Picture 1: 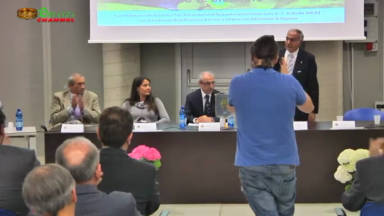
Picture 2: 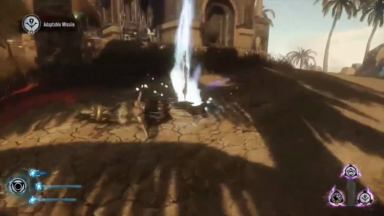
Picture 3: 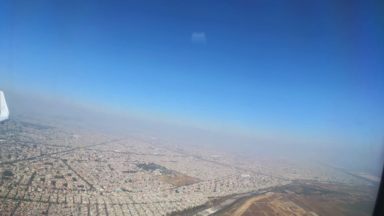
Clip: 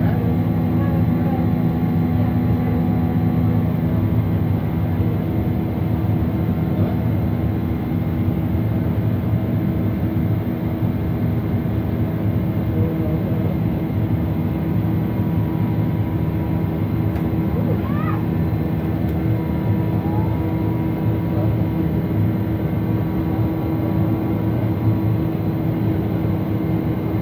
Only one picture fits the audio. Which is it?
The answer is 3